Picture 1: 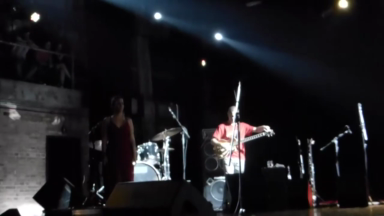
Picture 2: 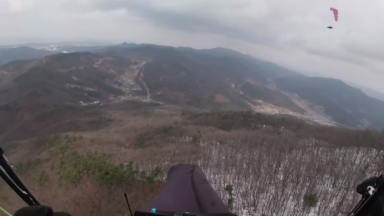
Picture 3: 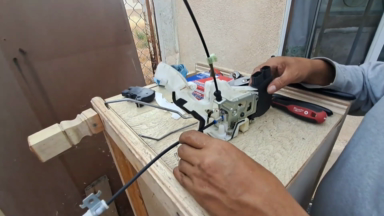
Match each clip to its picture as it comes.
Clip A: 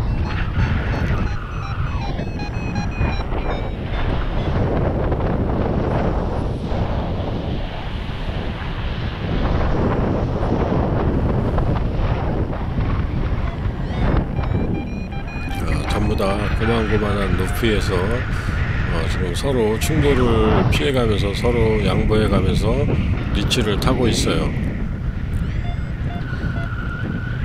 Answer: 2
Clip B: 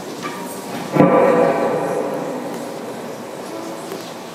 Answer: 1